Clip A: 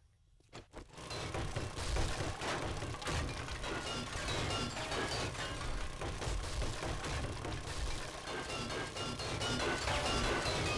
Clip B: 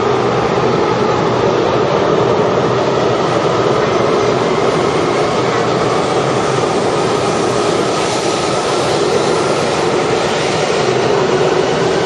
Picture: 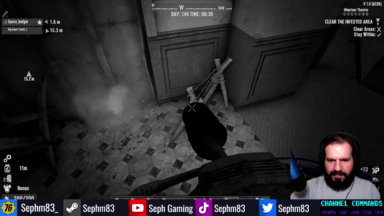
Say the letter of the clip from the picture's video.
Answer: A